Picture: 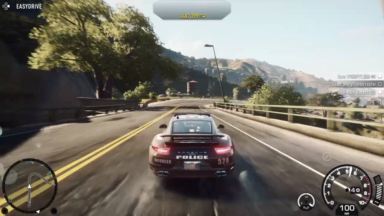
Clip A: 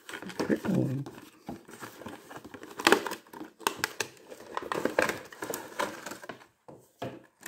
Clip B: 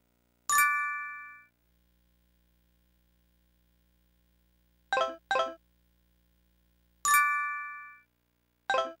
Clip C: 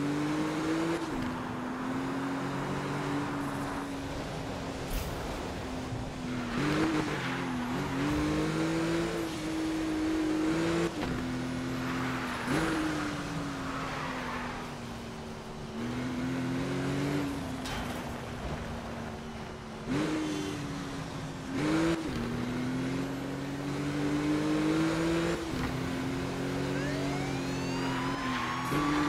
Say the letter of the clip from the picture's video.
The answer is C